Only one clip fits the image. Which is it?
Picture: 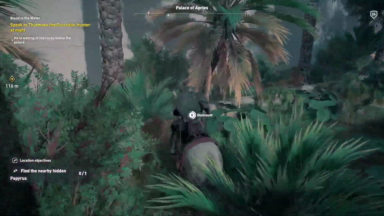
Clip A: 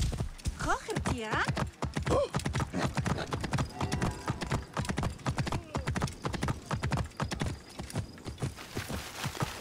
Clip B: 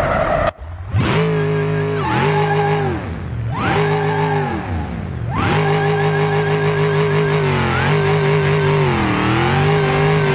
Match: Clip A